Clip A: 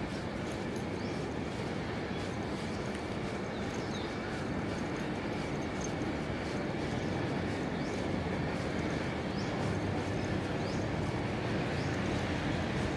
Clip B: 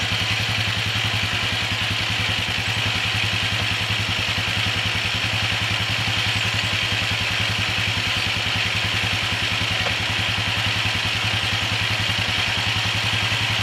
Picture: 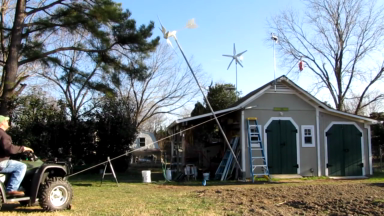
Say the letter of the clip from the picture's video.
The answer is B